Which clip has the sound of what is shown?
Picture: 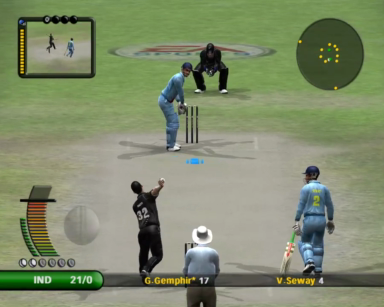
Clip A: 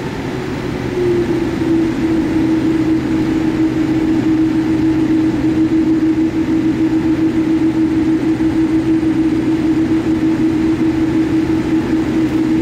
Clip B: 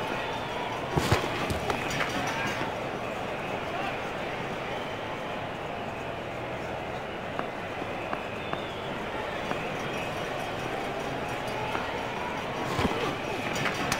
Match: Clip B